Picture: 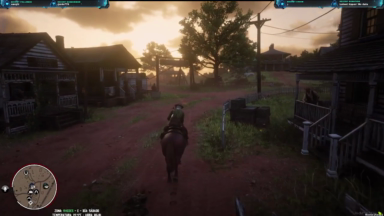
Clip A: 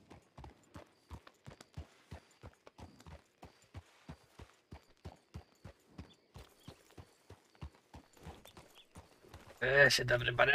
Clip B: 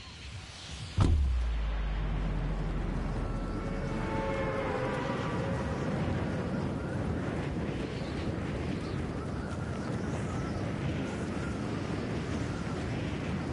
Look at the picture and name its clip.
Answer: A